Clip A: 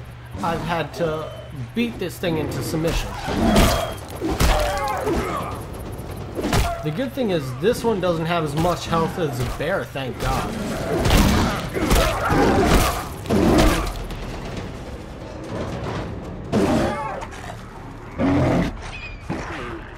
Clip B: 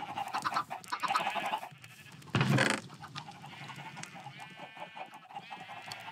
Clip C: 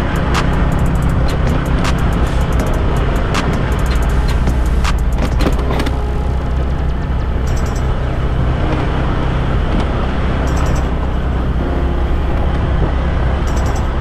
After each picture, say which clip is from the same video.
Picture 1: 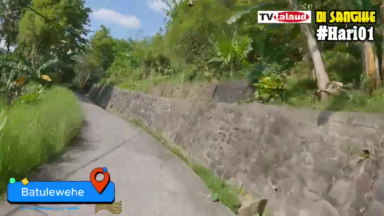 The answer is C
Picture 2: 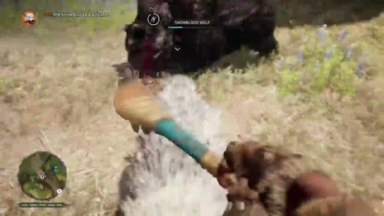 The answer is A